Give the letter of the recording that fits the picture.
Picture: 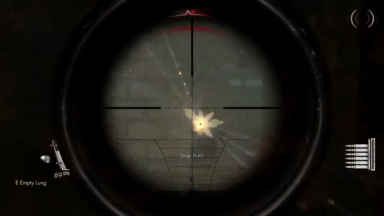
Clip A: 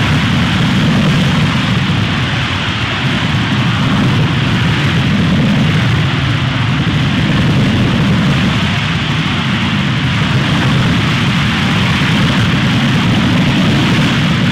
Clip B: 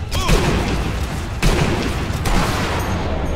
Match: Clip B